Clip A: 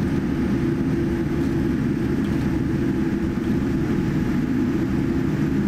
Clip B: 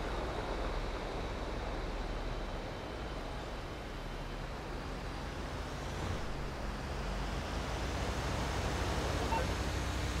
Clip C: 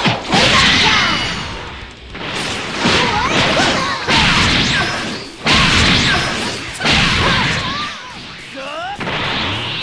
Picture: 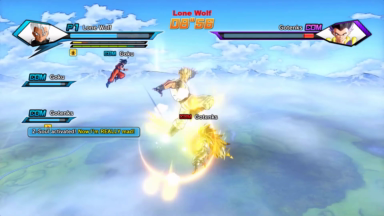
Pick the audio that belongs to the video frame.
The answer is C